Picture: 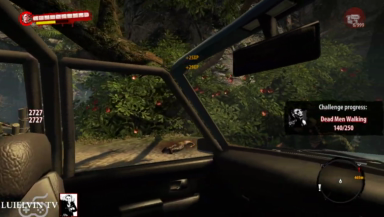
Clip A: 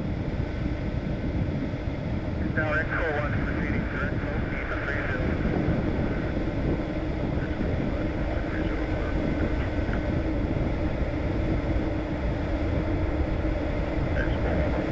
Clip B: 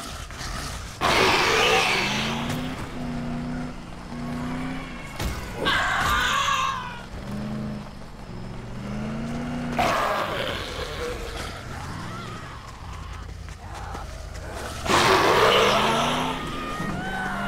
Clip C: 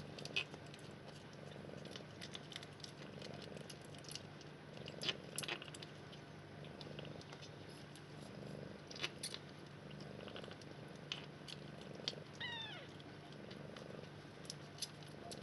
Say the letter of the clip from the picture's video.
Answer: B